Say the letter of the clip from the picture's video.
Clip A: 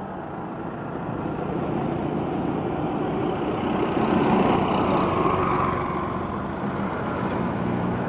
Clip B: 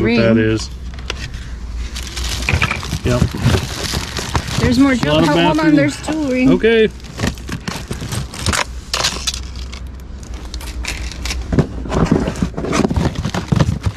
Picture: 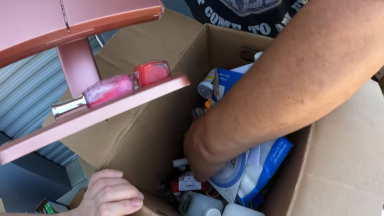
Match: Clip B